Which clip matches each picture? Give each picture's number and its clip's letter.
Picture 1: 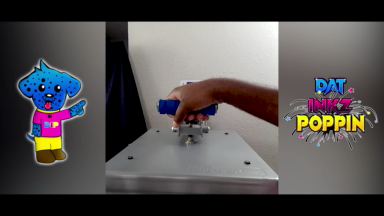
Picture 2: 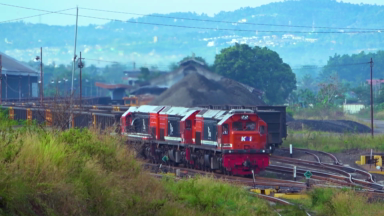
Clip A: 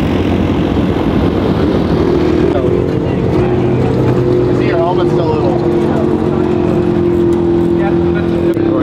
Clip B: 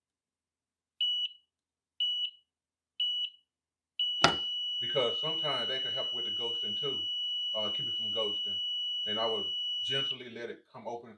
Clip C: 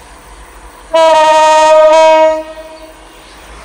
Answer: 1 B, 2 C